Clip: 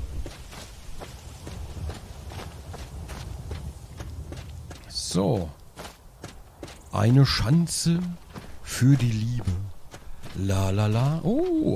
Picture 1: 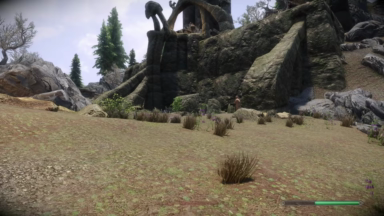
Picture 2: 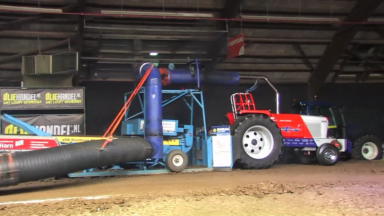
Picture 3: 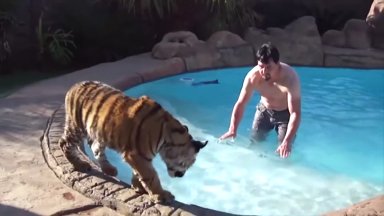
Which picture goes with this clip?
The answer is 1